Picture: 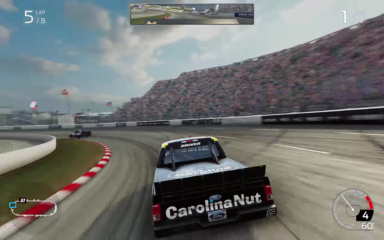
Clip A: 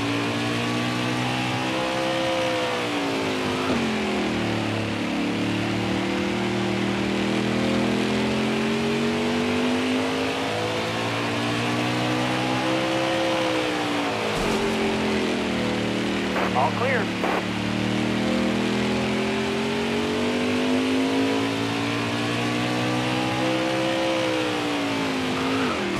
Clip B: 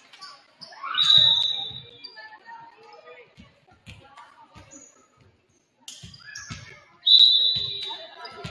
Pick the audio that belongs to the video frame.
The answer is A